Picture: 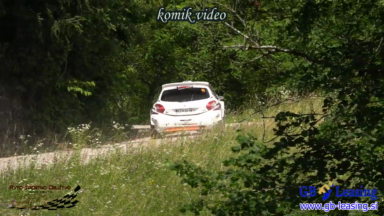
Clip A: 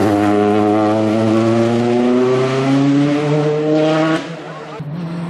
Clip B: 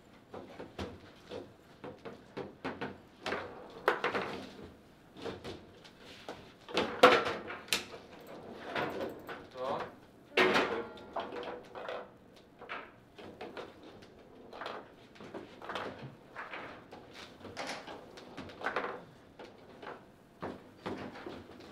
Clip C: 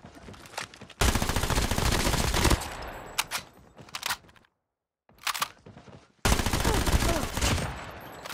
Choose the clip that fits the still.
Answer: A